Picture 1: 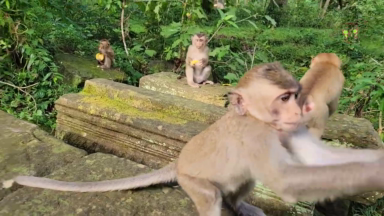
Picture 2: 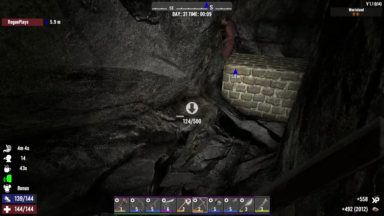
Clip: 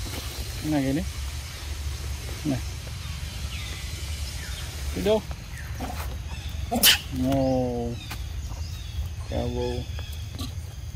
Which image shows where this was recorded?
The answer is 1